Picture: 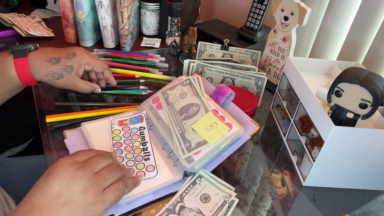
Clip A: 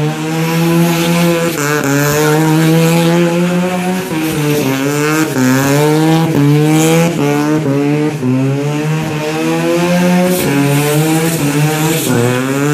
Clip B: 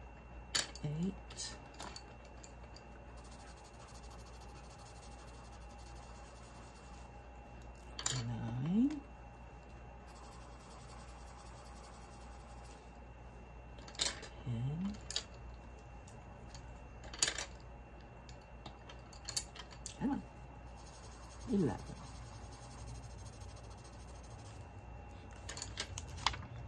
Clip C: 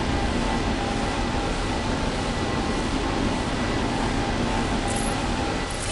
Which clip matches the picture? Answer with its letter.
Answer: B